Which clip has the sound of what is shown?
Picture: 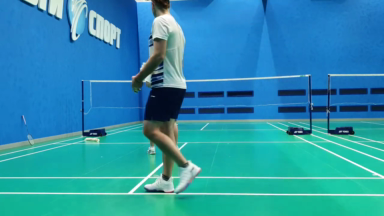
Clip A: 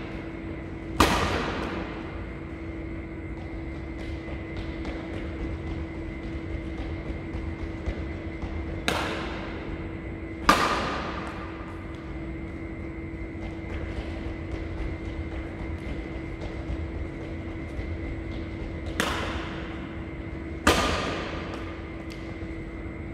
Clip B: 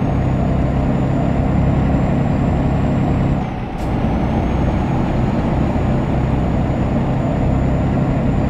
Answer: A